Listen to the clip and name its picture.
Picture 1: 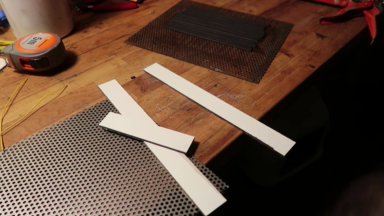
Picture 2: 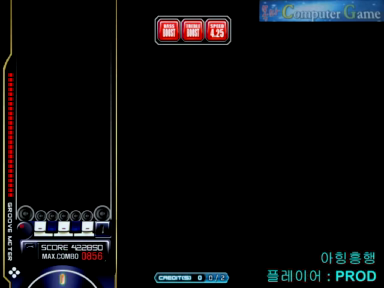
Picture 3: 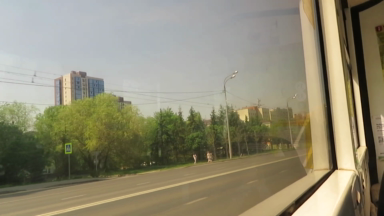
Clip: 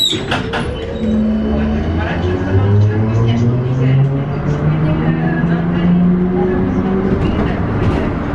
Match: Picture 3